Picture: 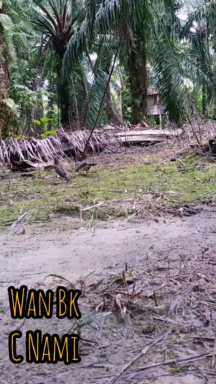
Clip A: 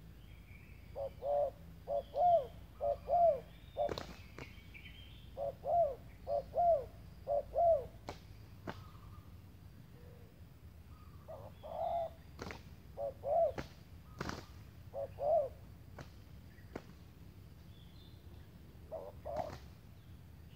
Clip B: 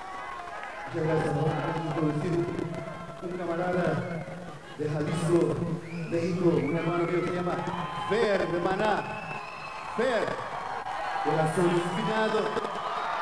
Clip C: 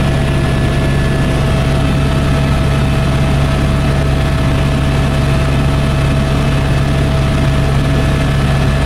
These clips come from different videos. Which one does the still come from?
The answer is A